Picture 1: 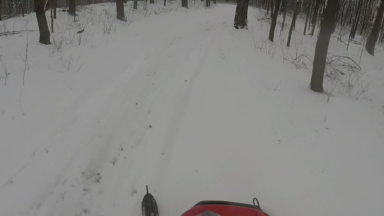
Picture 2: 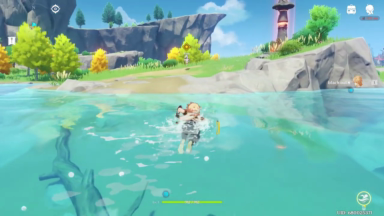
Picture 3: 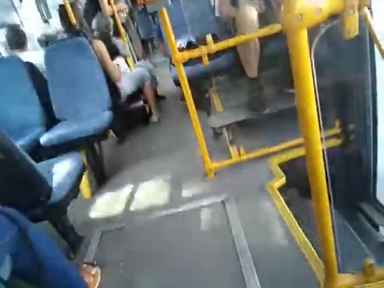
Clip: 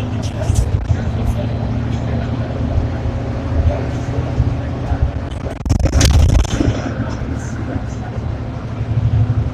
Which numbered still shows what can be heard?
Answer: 3